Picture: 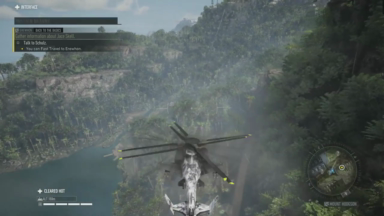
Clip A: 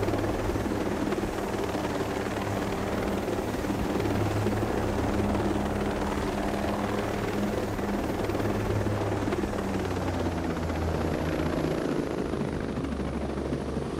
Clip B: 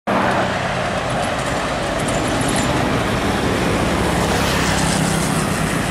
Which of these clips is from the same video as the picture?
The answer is A